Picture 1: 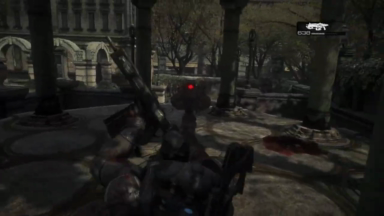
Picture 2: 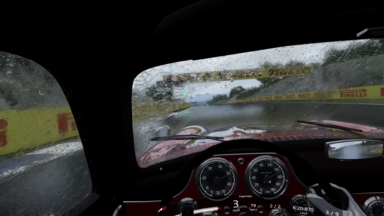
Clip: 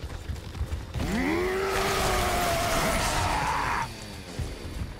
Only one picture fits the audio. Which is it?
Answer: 1